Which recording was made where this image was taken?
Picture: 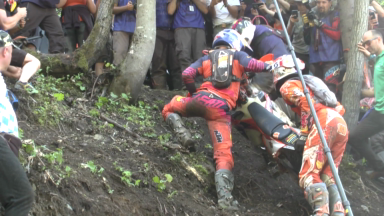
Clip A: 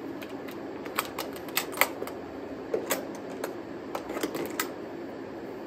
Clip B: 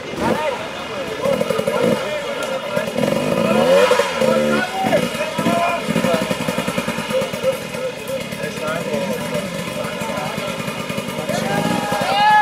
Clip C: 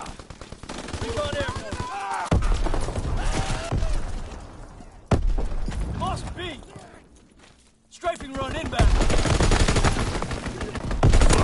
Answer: B